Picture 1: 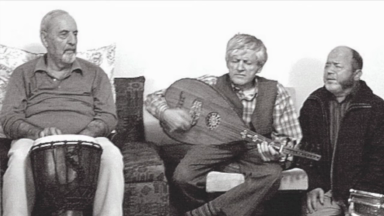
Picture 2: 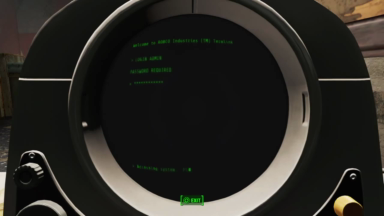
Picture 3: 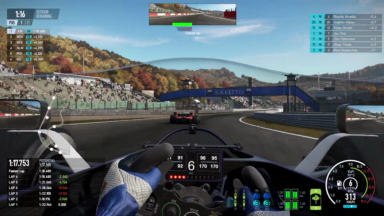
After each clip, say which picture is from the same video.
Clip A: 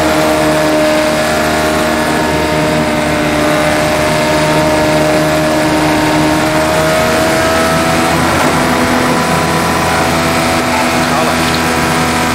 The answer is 3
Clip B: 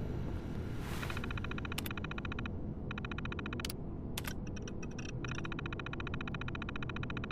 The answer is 2